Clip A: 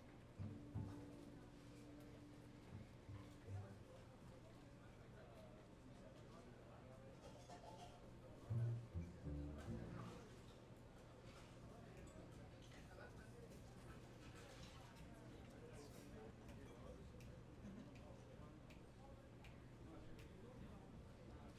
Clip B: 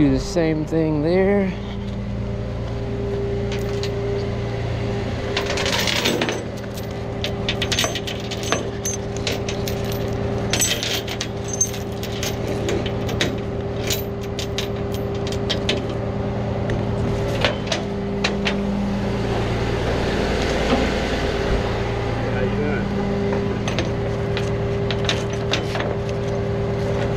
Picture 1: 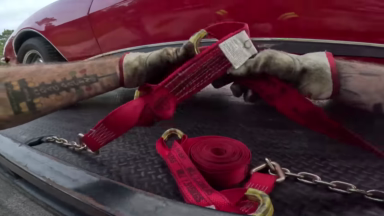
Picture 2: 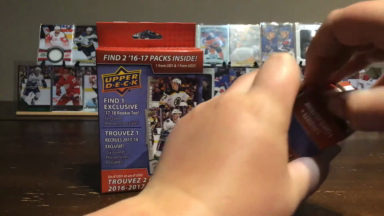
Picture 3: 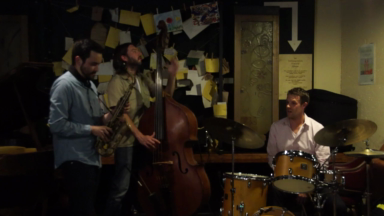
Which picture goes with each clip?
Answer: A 3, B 1